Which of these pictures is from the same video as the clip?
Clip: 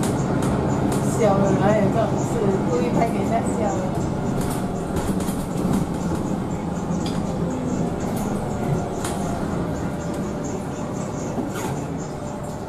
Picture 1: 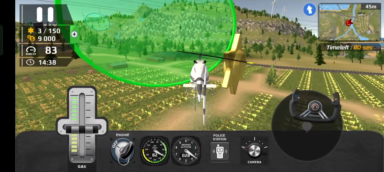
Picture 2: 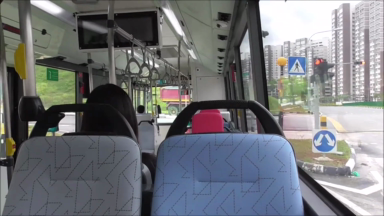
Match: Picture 2